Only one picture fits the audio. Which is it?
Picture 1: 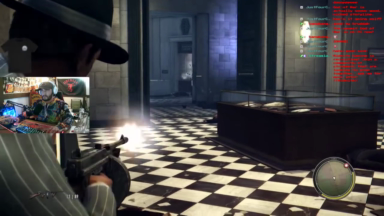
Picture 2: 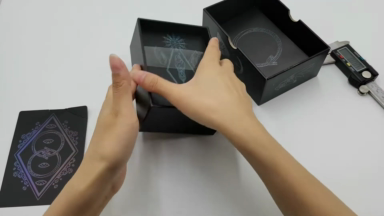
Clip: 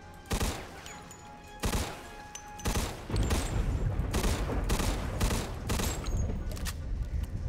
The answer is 1